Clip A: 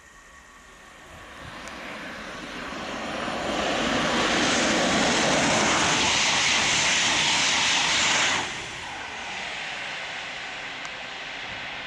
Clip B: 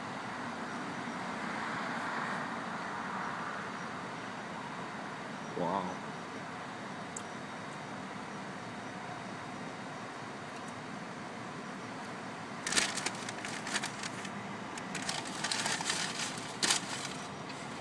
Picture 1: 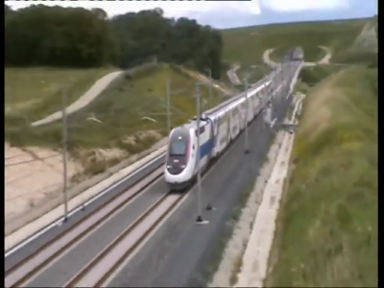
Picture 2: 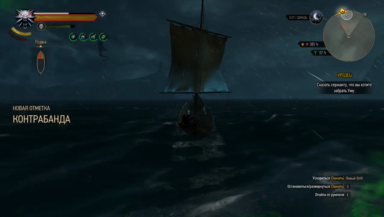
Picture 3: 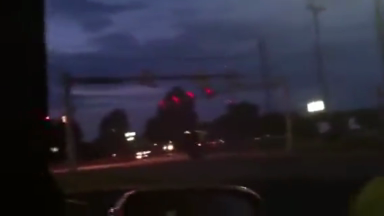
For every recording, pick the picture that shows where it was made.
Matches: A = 1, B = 3